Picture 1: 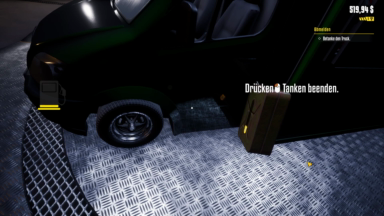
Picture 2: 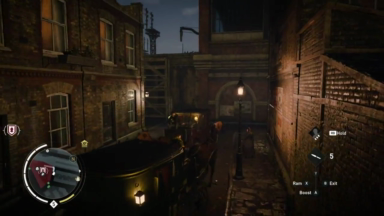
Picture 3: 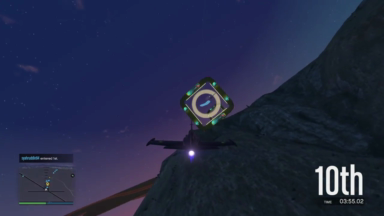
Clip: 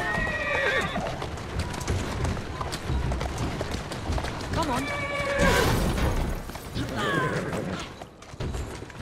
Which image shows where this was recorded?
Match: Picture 2